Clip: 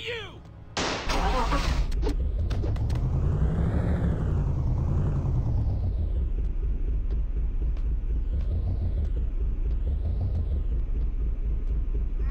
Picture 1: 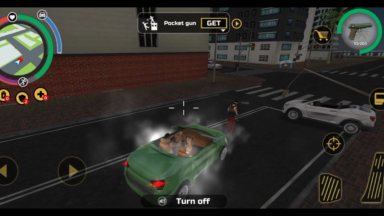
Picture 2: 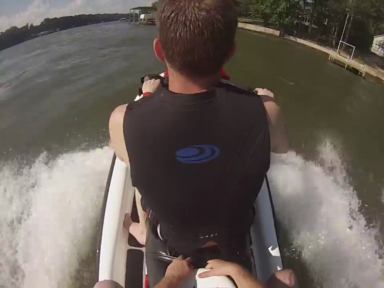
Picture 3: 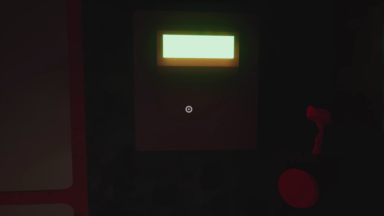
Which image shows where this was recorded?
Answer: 1